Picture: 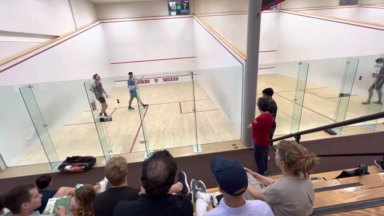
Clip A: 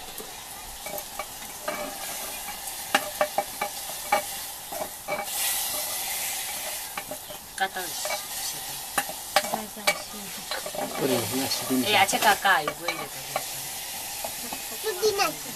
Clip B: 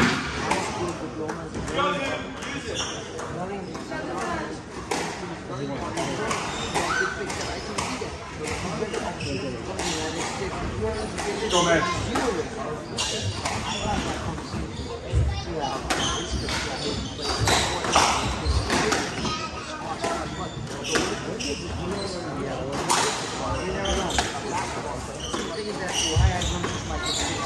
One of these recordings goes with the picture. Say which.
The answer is B